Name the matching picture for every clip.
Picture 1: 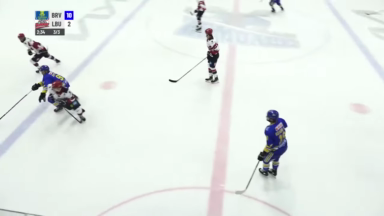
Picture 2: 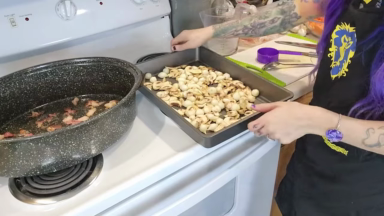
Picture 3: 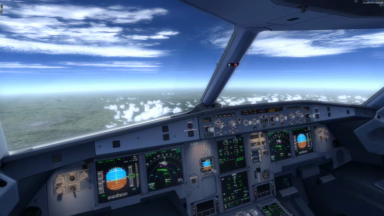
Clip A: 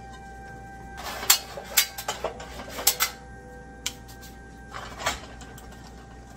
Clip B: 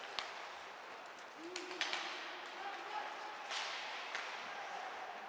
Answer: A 2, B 1